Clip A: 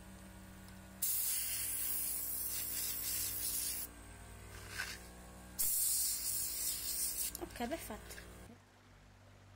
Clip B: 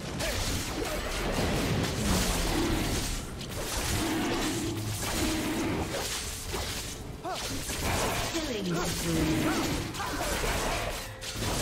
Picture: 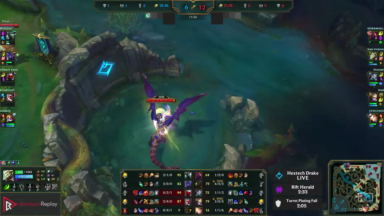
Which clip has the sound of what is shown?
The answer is B